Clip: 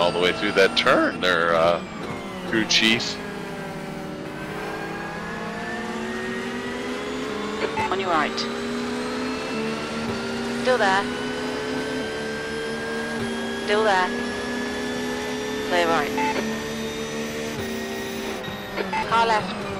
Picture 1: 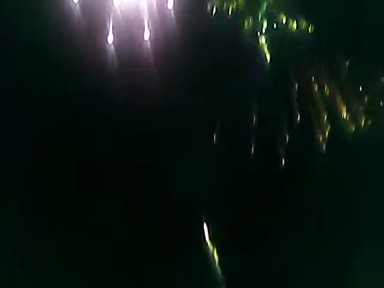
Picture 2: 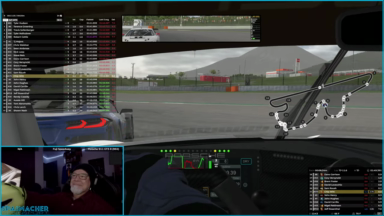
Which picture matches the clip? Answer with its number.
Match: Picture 2